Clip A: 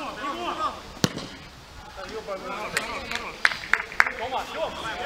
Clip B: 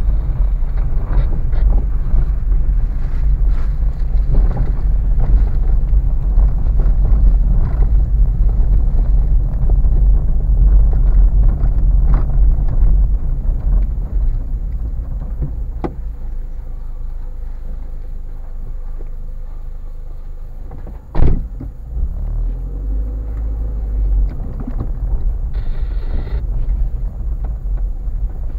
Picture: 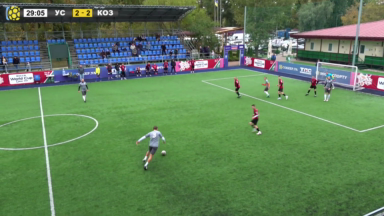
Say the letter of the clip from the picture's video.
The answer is A